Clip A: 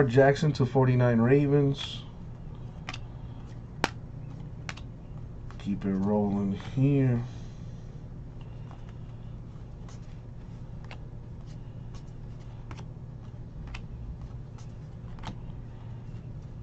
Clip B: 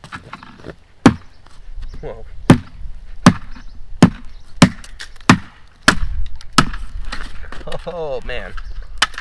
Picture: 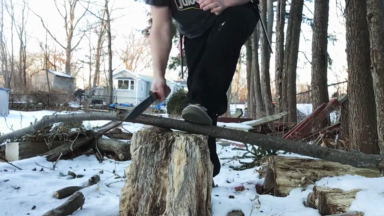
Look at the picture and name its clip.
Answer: B